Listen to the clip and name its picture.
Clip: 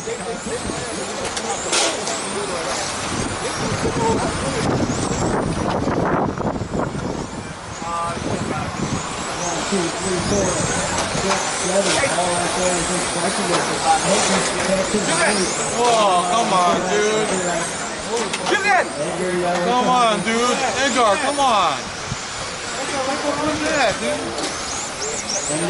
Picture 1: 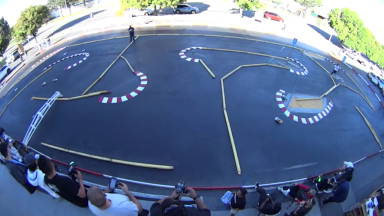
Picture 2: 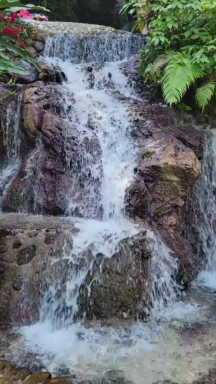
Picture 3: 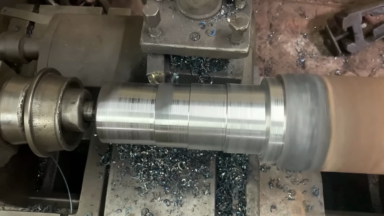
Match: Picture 1